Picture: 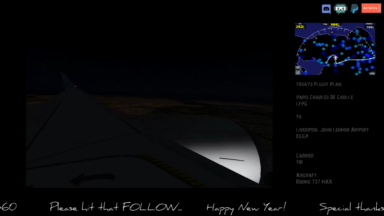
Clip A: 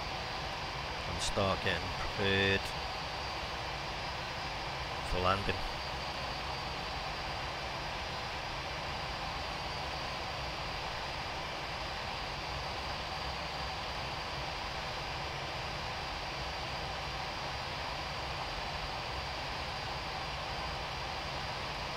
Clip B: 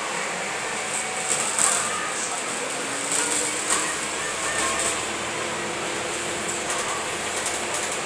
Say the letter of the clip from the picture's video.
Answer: A